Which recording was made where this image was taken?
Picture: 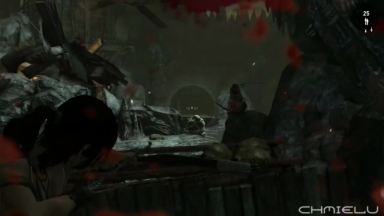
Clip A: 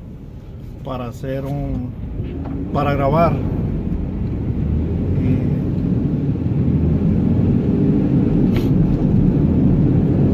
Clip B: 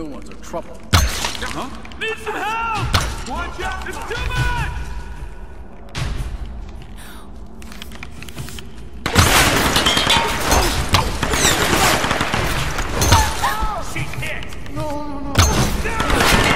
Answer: B